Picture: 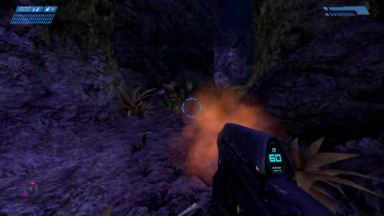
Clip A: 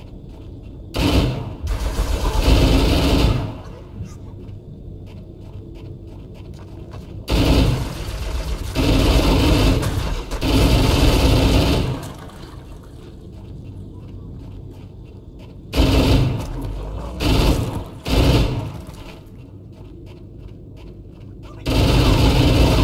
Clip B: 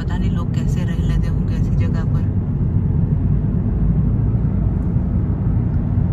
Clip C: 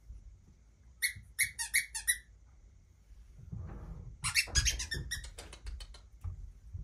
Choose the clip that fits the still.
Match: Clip A